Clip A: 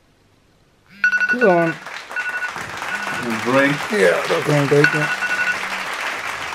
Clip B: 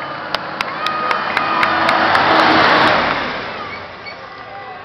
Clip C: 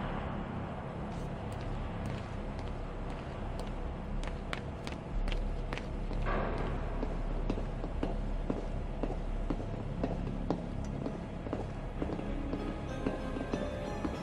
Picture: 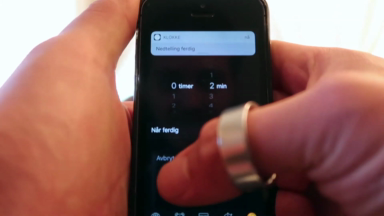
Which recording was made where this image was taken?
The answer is A